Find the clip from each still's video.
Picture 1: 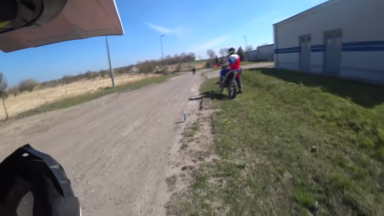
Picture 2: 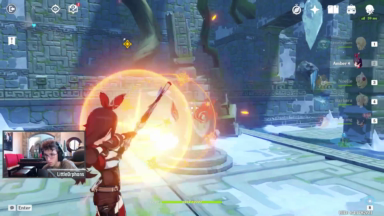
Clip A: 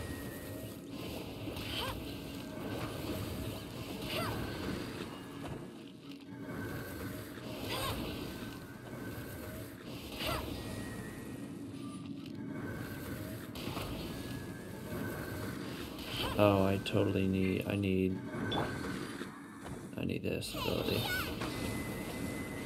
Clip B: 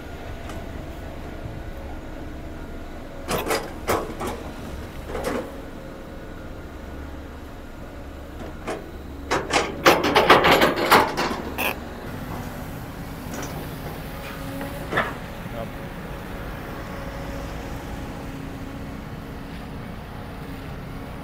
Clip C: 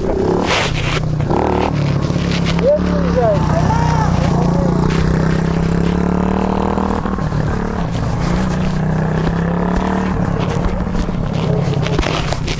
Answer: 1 C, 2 A